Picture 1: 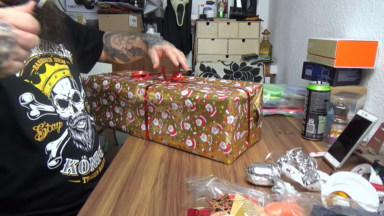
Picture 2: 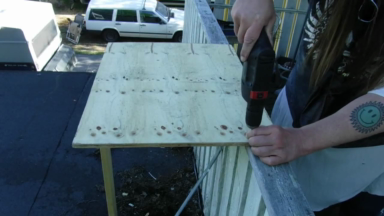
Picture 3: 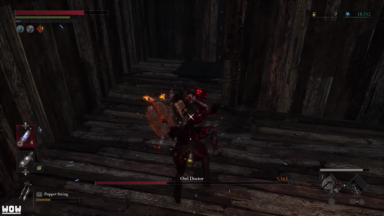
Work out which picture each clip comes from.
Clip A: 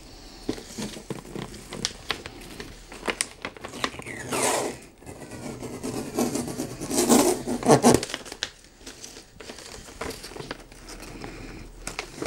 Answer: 1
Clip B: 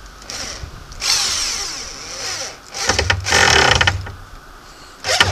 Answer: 2